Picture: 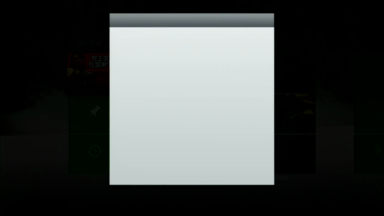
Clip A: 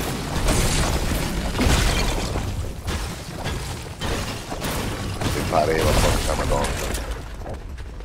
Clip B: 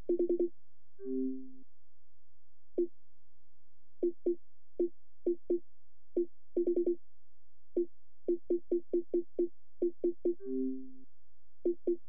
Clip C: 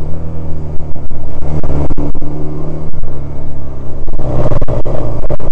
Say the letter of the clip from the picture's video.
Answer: B